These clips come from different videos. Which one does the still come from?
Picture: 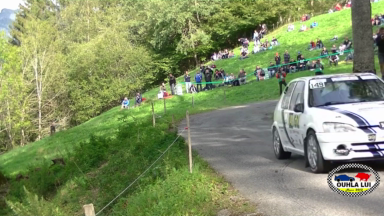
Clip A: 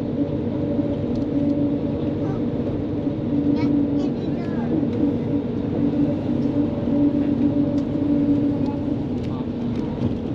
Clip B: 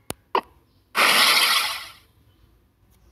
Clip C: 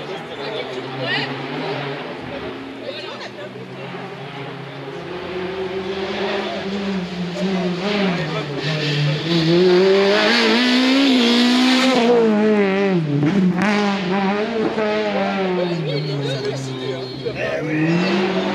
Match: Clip C